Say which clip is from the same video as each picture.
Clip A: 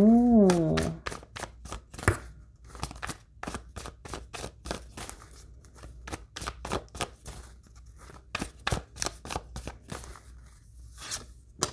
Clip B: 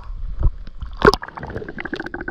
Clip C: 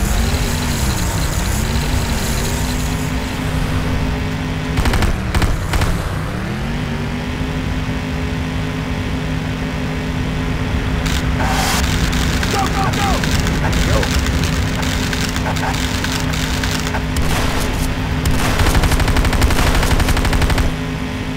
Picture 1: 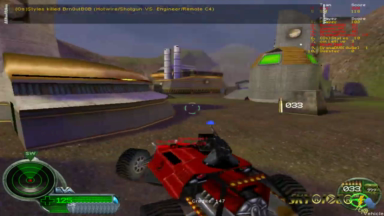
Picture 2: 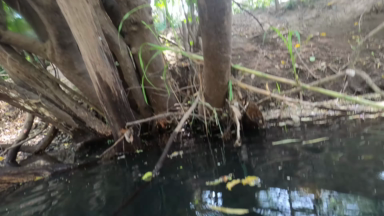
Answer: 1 C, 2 B